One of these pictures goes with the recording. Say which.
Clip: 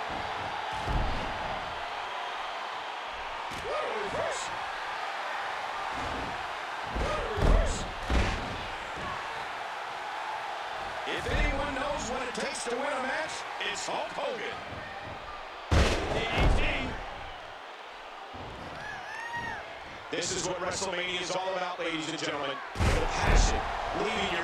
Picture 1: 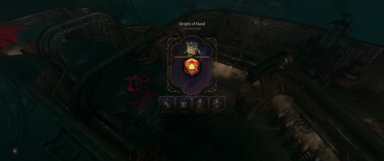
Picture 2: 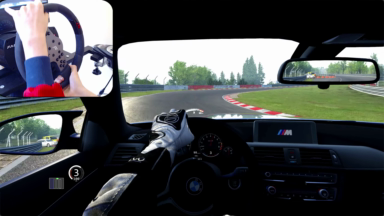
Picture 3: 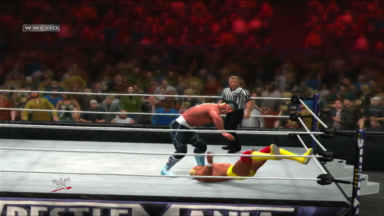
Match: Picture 3